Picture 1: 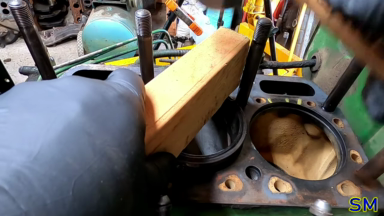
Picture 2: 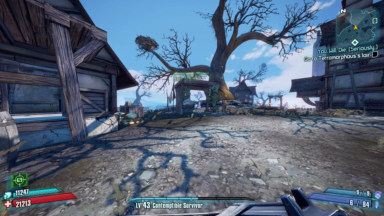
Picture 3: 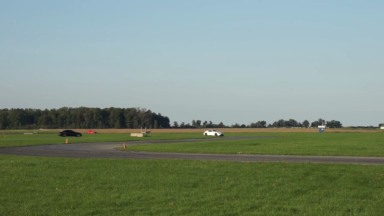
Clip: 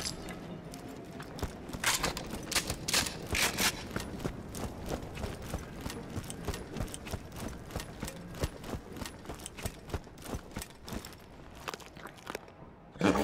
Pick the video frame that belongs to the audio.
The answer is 2